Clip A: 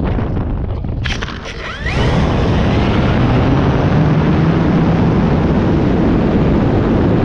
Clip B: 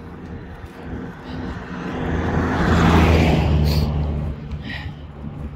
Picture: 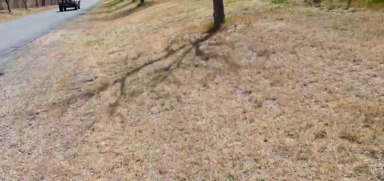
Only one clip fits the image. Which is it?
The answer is B